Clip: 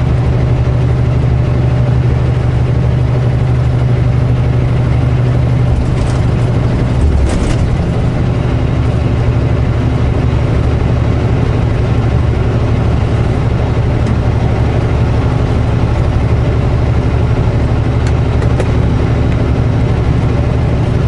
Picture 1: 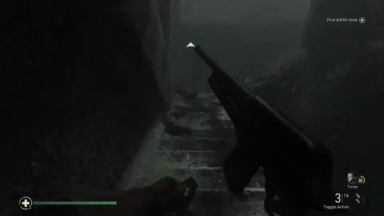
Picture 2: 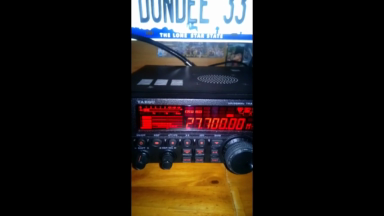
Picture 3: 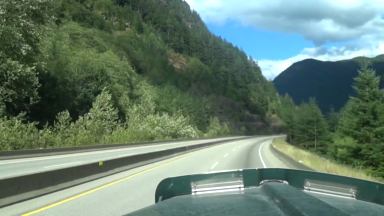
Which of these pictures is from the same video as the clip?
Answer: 3